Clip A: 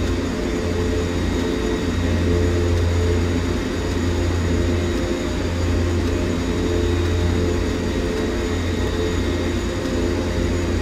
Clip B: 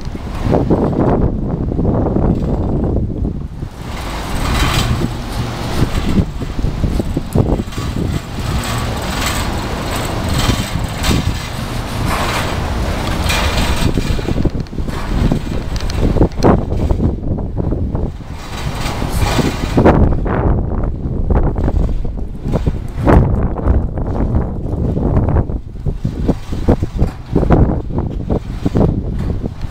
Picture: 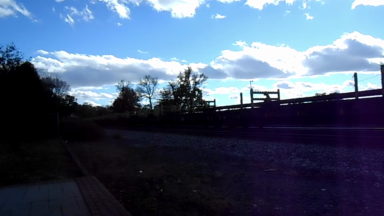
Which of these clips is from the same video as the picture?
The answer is B